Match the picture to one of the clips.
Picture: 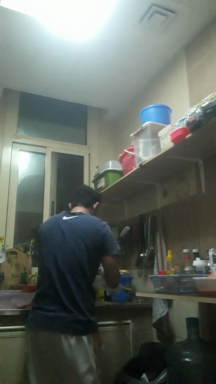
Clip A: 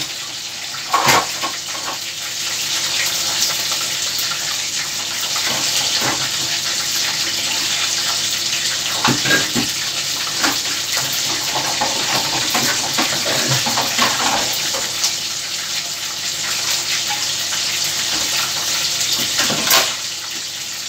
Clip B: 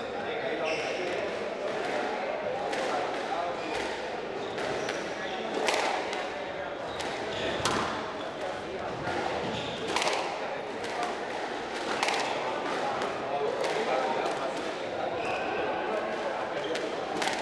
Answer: A